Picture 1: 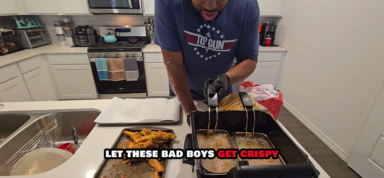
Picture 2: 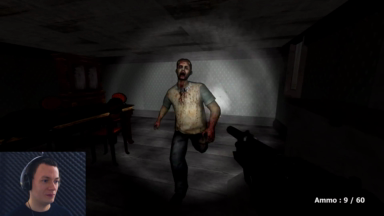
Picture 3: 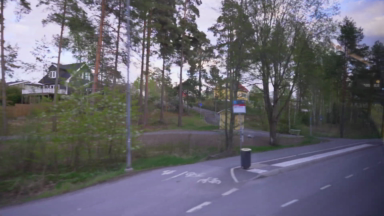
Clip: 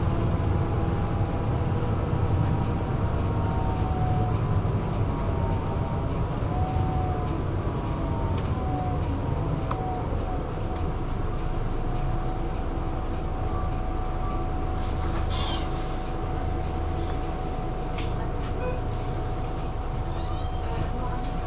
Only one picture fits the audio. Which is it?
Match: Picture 3